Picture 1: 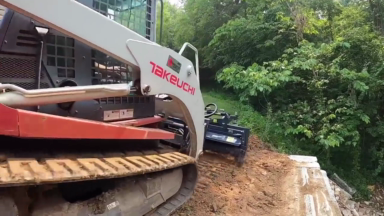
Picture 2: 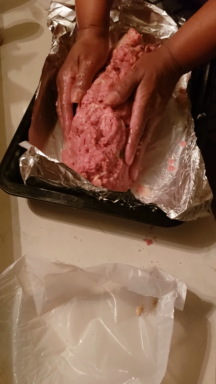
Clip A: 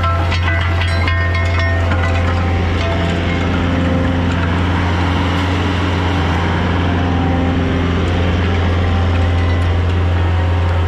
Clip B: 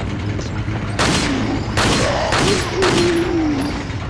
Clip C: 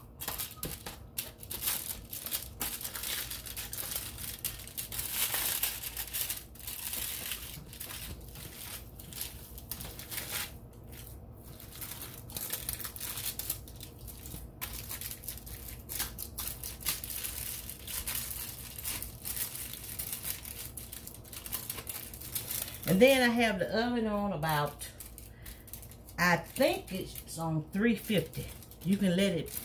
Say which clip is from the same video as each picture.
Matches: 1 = A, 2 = C